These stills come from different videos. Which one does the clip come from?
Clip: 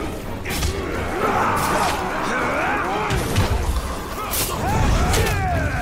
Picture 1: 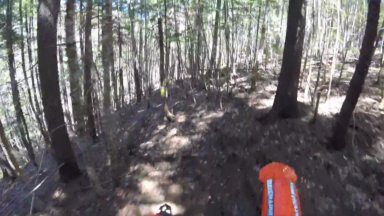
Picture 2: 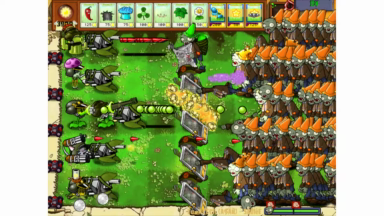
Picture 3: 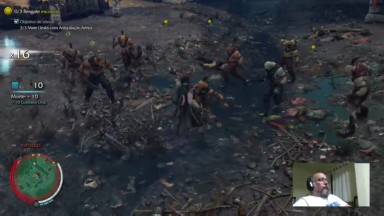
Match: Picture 3